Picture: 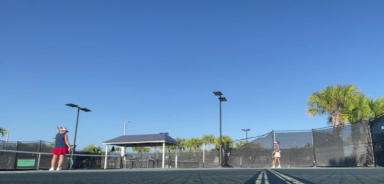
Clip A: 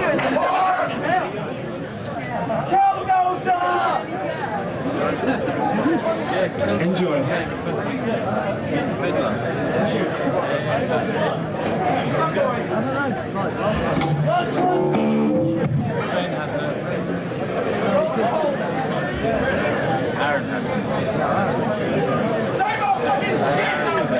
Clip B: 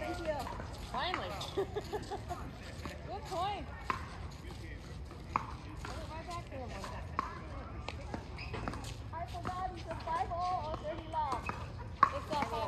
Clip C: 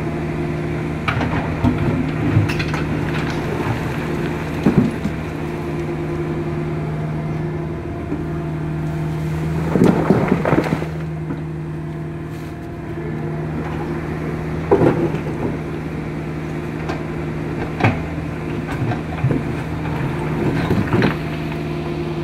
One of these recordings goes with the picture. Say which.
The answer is B